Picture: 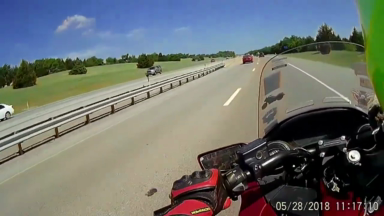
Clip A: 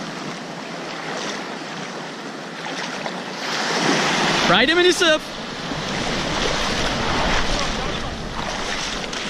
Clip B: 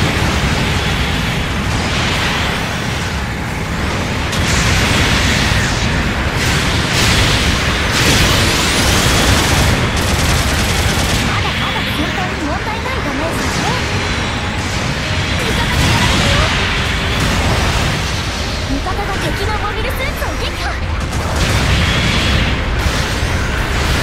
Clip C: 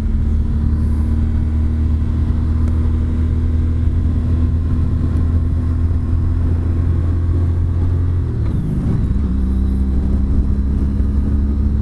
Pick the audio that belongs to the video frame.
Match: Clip C